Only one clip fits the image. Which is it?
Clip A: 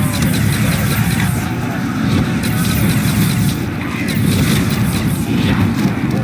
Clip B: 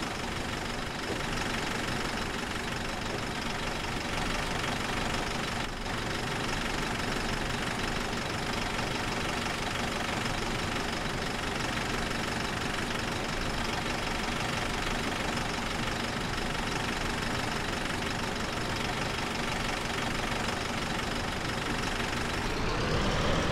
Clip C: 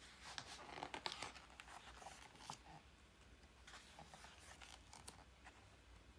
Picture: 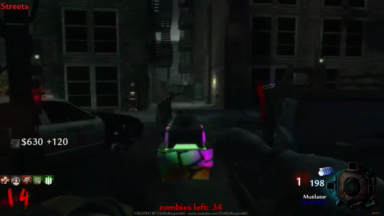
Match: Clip A